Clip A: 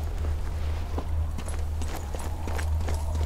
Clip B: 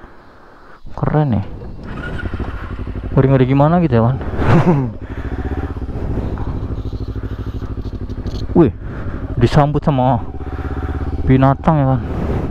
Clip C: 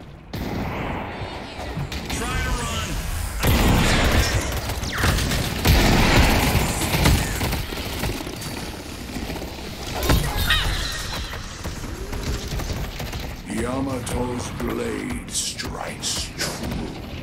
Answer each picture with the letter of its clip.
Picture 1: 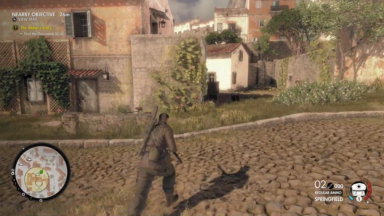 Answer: A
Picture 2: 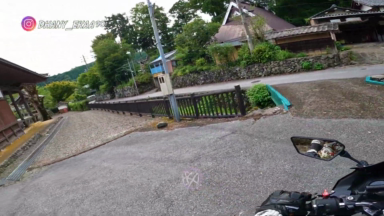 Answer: B